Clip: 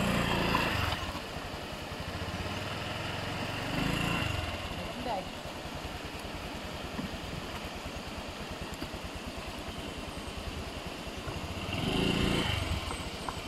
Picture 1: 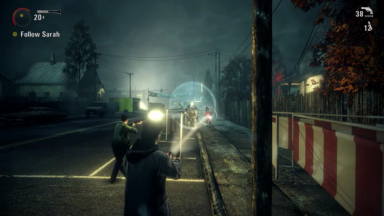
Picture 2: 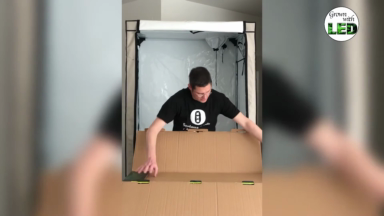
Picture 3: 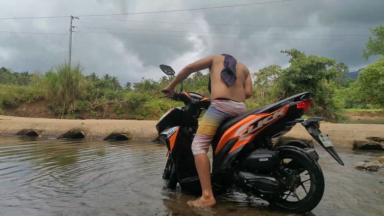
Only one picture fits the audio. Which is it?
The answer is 3